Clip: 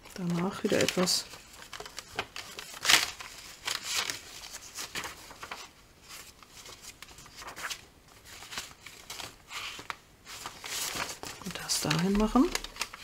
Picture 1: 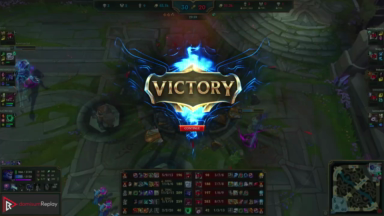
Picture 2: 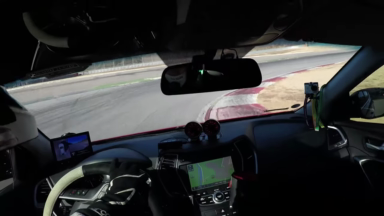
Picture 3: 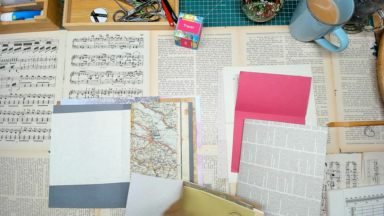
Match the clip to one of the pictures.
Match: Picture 3